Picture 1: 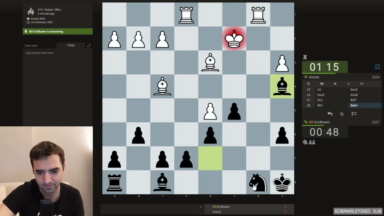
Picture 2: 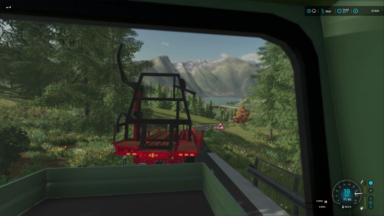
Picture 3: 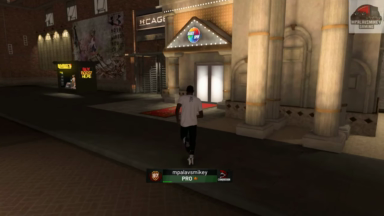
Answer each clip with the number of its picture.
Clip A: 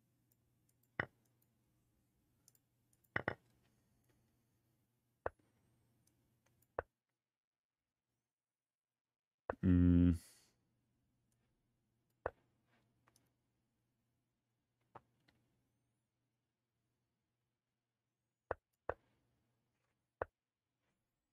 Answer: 1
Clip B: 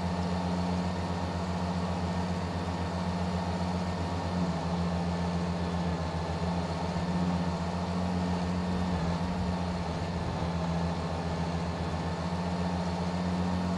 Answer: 2